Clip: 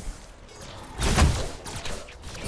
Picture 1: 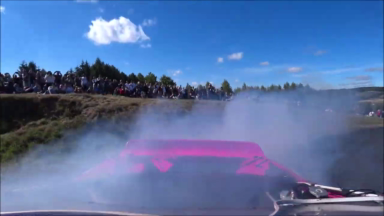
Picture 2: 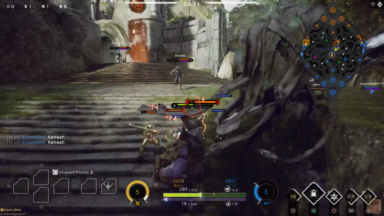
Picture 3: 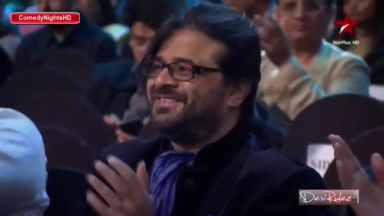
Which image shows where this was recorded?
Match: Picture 2